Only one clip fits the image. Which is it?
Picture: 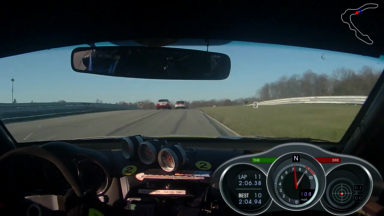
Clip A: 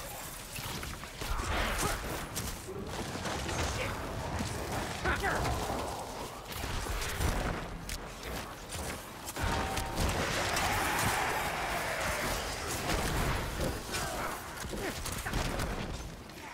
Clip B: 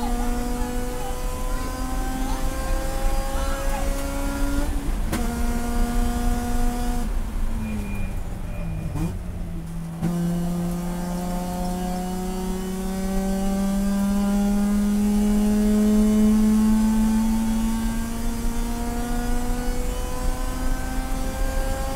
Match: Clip B